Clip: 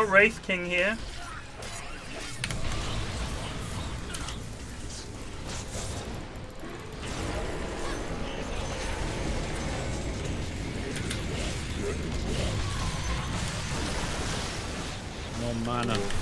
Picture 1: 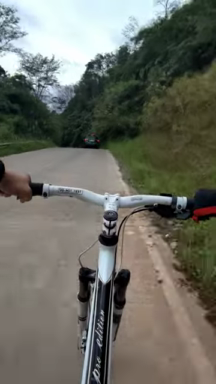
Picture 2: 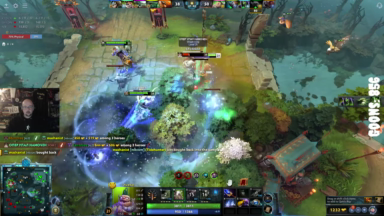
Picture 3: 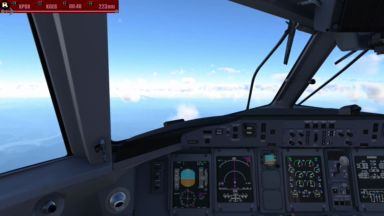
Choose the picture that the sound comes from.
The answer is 2